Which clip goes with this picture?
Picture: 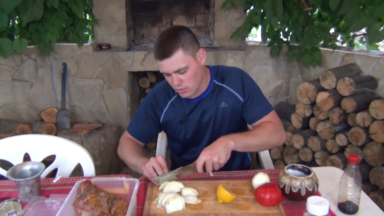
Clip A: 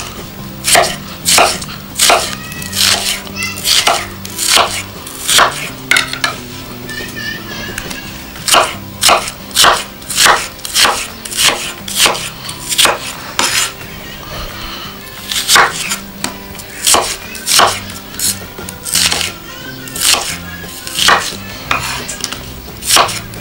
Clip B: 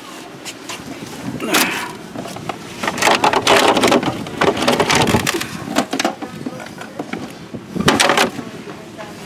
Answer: A